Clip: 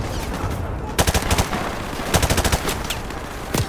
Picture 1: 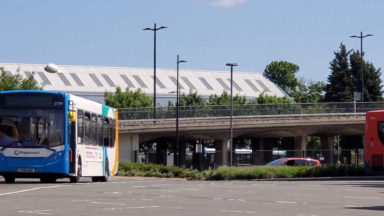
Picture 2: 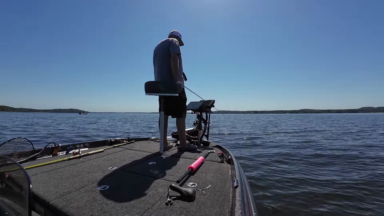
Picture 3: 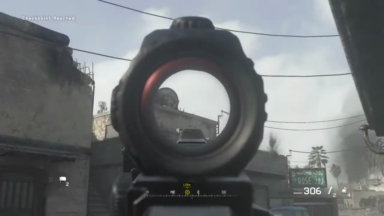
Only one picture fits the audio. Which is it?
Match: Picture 3